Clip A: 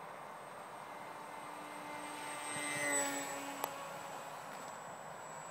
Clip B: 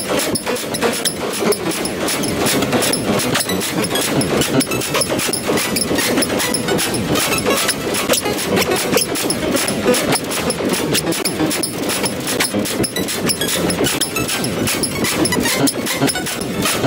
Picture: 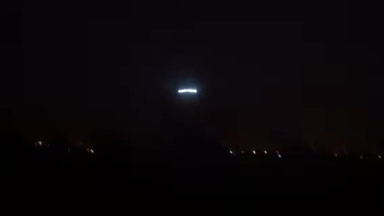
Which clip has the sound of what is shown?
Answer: A